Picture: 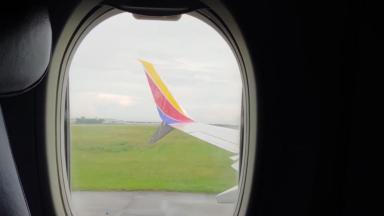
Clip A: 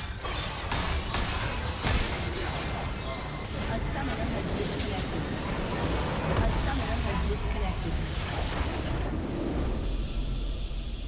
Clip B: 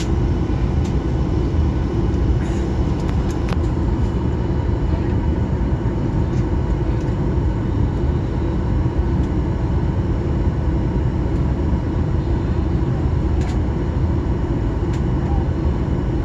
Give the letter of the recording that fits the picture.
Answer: B